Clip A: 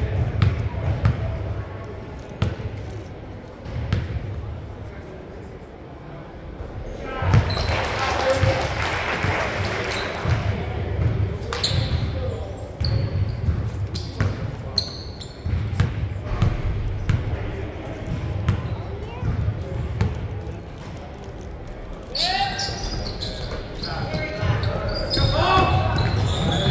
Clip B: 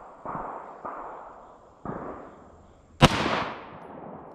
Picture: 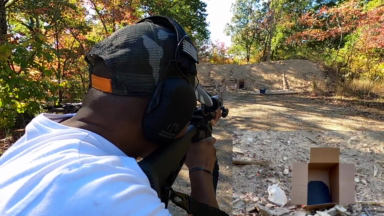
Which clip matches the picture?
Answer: B